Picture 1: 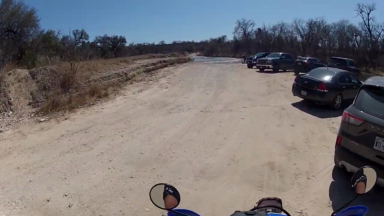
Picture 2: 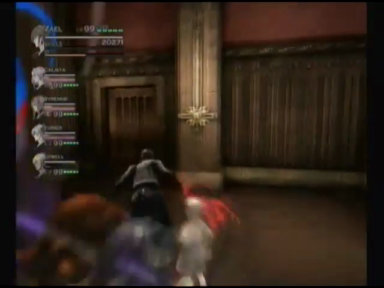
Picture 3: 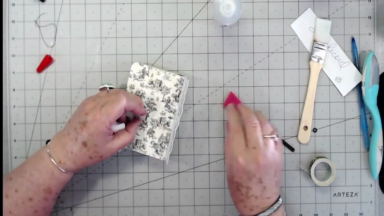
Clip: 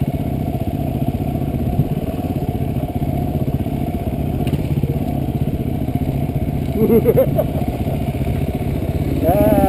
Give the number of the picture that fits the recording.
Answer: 1